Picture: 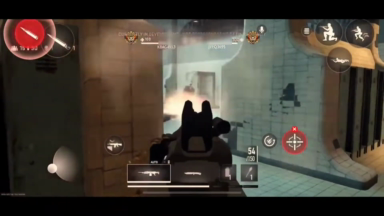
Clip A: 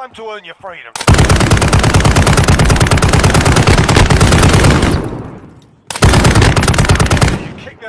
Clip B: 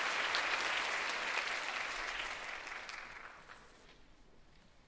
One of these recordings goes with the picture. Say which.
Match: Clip A